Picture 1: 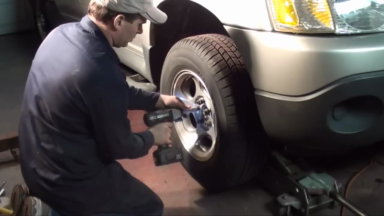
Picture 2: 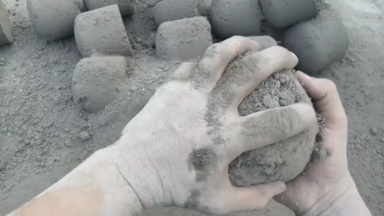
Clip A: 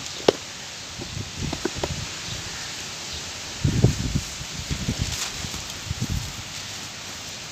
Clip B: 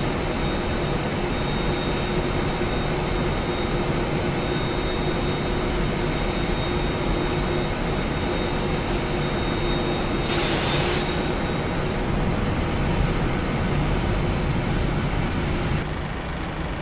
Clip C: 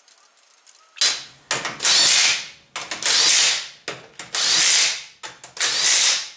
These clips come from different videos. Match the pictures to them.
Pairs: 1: C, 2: A